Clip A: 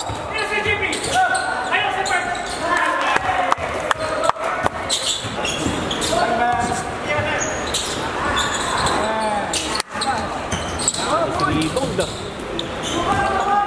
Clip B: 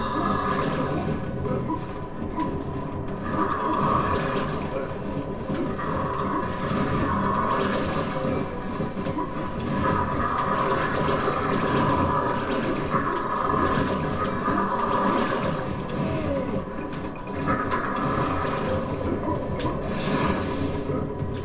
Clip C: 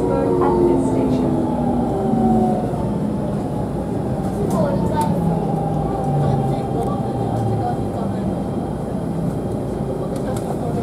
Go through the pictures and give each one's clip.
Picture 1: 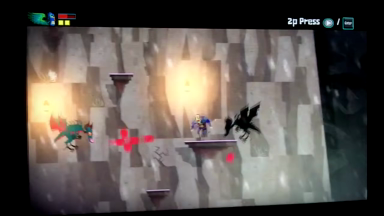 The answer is B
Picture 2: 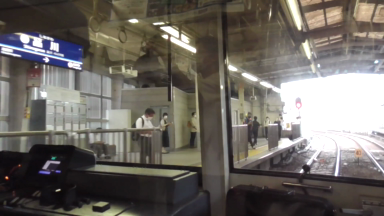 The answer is C